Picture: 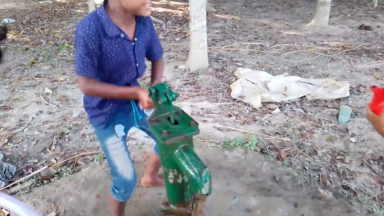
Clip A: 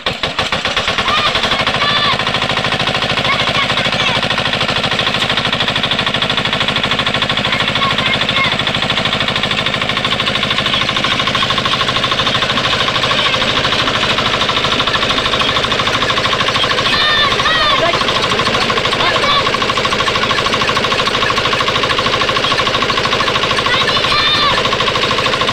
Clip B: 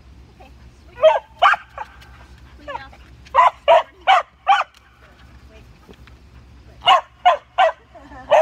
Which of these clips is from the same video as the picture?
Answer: A